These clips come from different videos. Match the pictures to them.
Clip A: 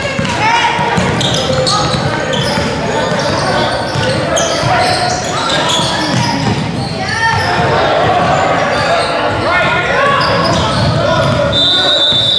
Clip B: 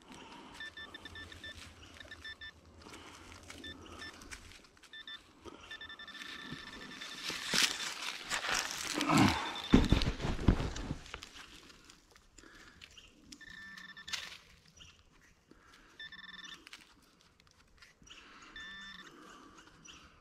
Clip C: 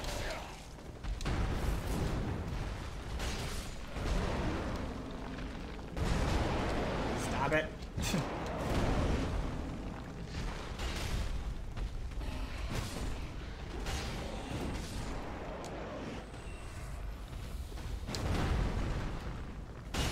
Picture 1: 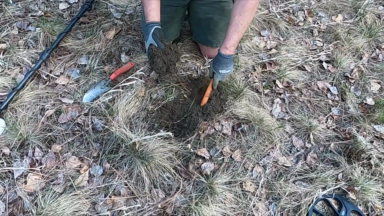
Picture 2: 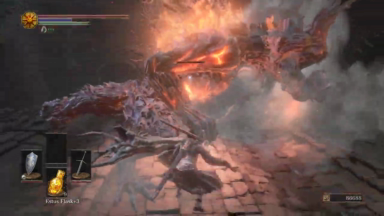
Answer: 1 B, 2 C